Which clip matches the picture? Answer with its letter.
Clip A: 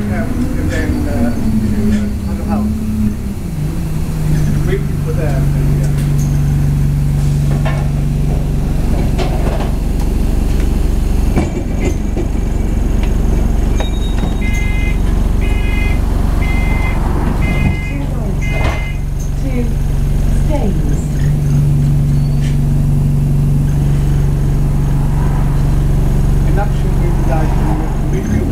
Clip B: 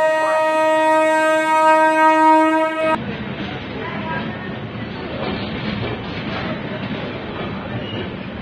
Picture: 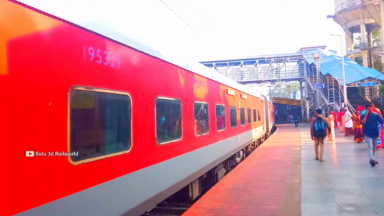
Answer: B